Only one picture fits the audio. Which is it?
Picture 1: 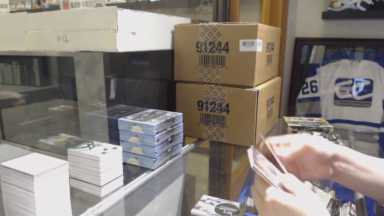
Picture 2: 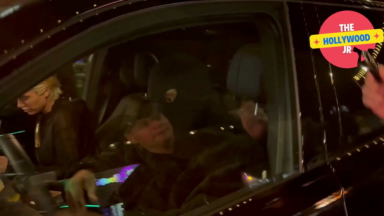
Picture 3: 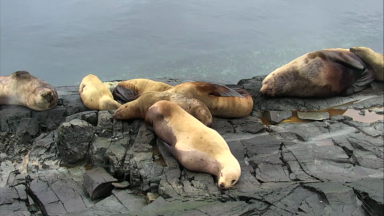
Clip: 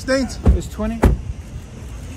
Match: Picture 2